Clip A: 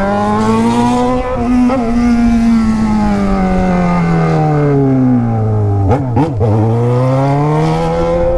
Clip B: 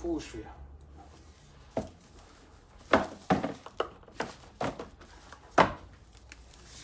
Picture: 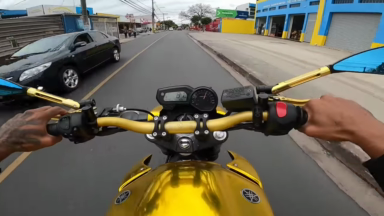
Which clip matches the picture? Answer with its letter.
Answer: A